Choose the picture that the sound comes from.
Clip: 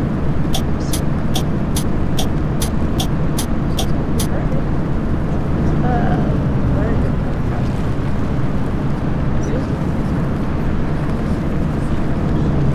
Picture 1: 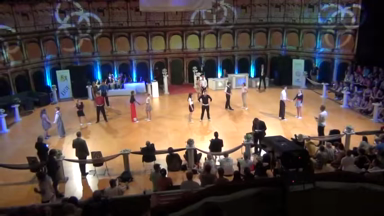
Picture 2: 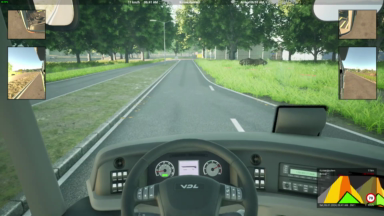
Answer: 2